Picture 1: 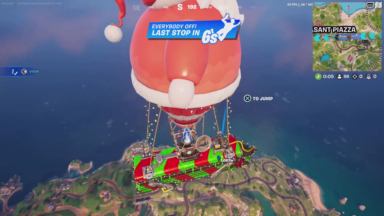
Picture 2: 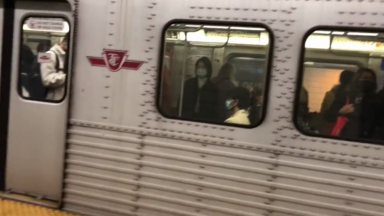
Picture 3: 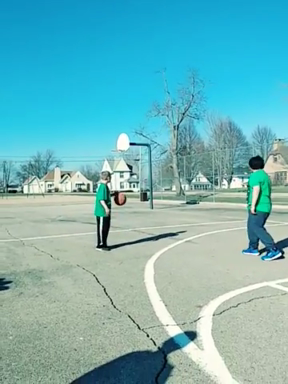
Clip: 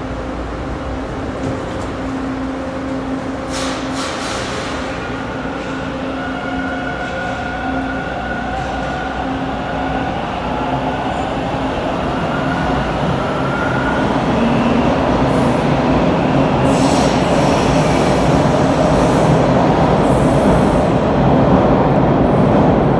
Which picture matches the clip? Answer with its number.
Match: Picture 2